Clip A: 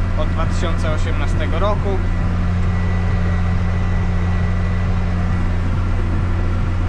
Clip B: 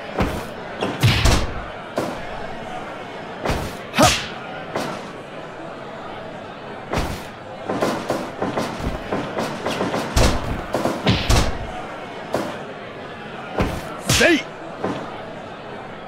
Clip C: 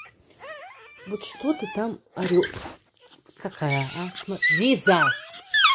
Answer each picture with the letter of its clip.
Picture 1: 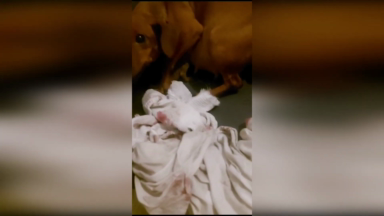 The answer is C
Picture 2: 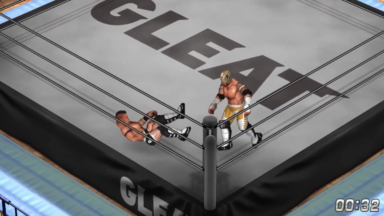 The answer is B